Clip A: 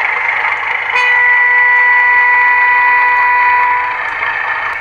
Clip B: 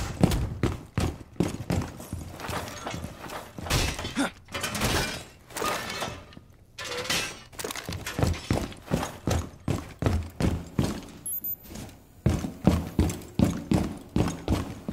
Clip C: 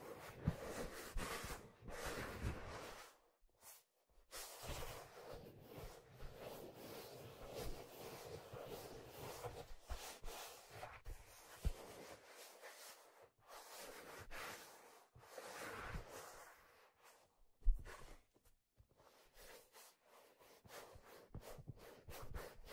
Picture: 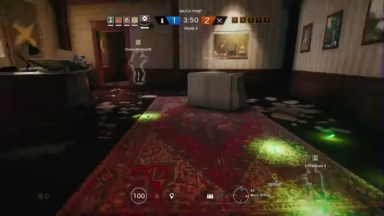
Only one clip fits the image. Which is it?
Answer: B